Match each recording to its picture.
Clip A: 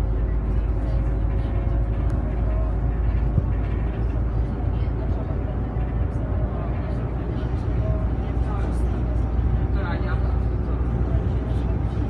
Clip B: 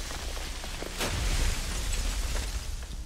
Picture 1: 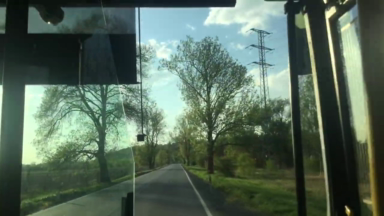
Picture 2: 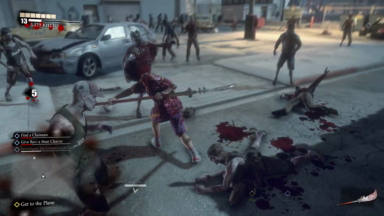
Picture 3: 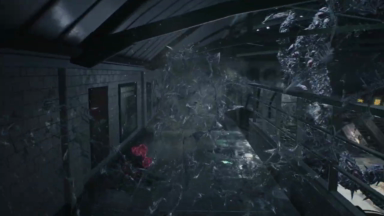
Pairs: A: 1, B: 3